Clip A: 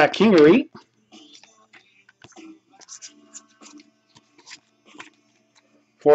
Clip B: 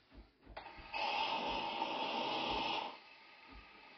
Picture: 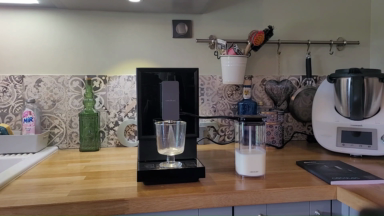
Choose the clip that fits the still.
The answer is B